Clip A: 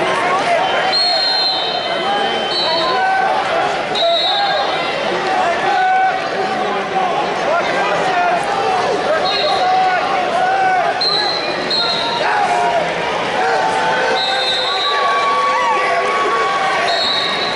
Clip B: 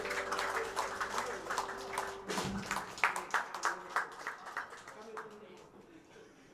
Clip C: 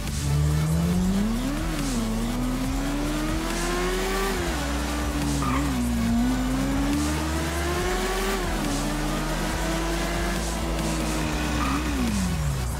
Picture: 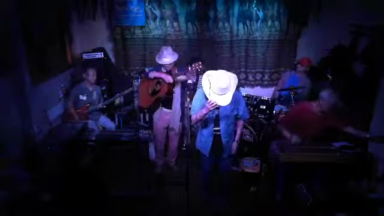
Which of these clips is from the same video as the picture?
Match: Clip B